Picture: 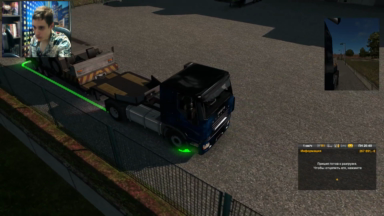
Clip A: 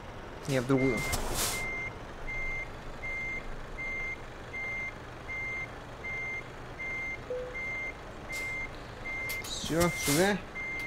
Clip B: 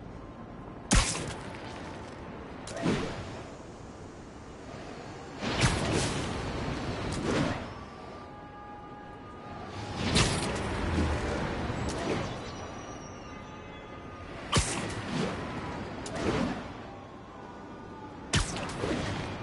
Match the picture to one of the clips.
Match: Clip A